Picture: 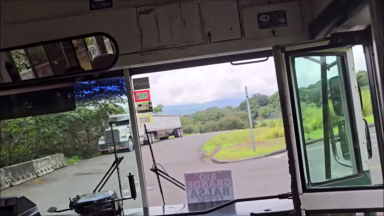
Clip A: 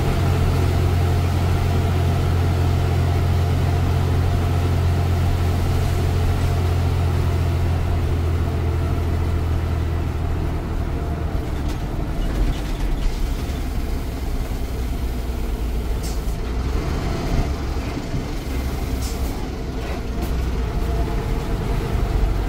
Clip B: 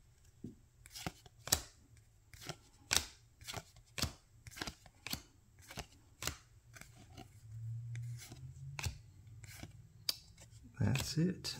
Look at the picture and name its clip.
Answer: A